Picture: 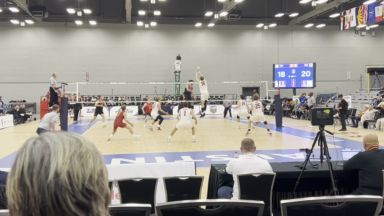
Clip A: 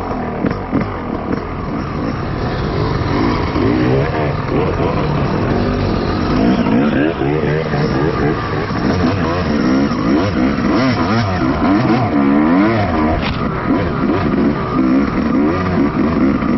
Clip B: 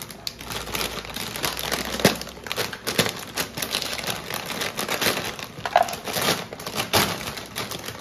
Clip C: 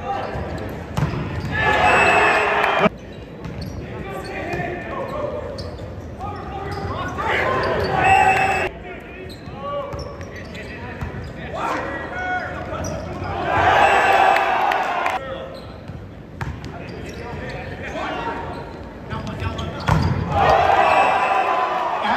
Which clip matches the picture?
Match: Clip C